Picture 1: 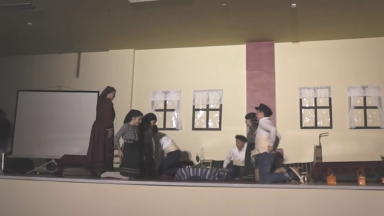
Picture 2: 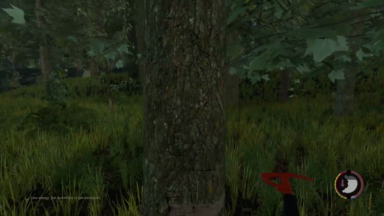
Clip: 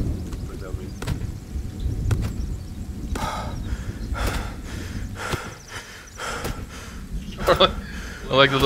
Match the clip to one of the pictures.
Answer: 2